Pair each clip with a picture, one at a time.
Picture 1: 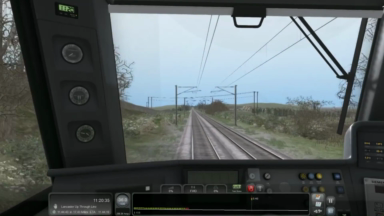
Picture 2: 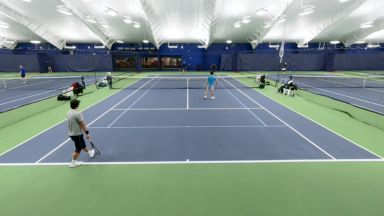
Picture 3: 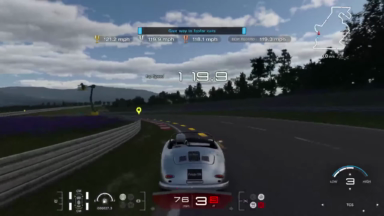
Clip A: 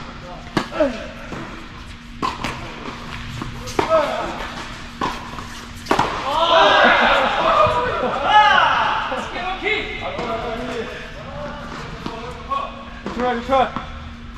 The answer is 2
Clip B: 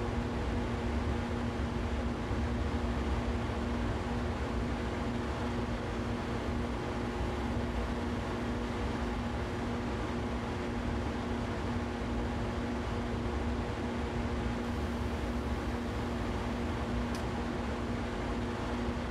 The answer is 1